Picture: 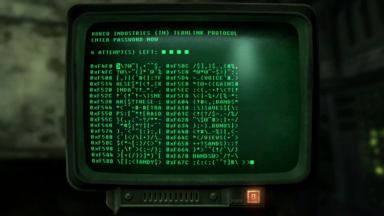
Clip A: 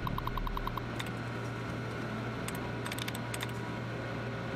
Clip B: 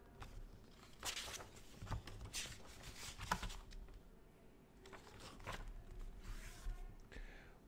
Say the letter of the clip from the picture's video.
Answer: A